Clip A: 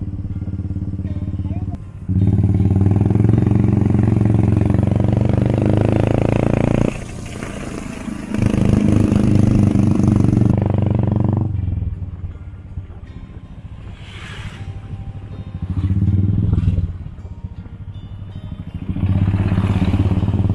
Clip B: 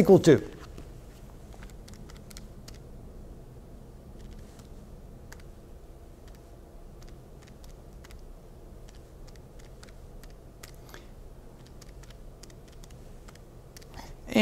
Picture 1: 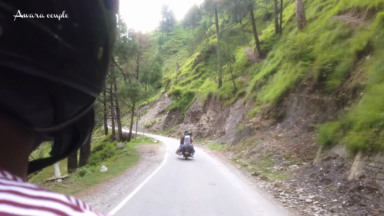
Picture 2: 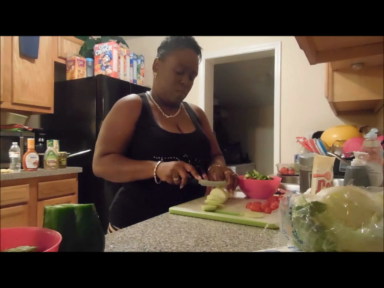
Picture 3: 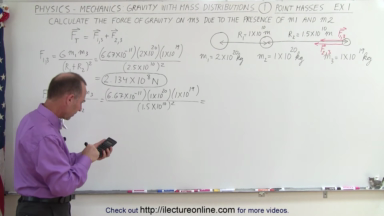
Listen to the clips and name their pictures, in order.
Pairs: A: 1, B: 3